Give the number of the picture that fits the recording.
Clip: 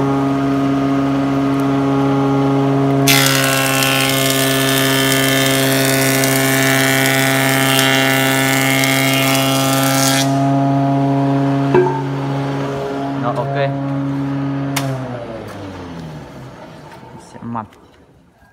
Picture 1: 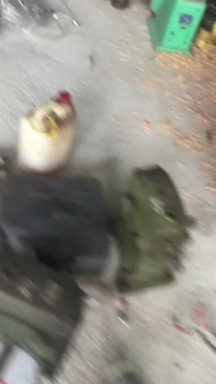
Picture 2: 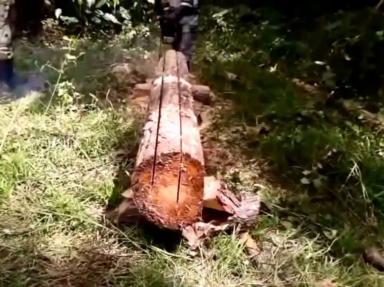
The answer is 1